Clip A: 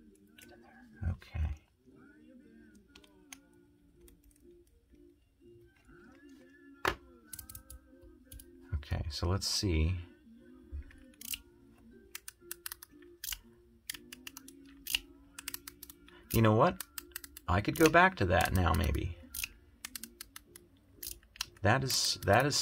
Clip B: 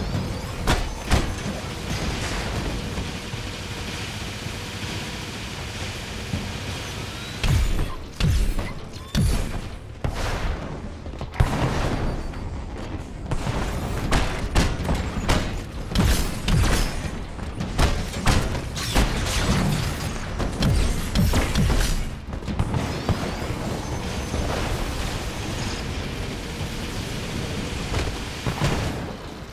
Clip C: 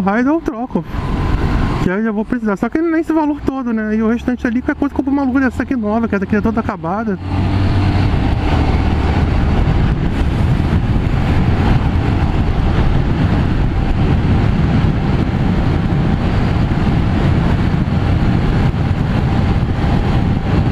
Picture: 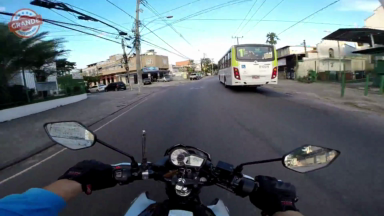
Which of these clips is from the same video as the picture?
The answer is C